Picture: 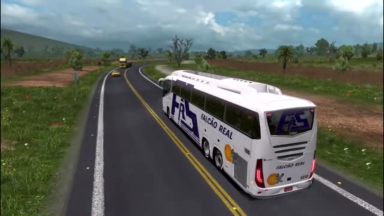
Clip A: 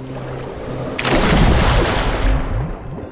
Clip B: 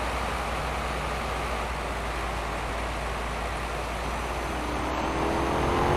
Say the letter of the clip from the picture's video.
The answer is B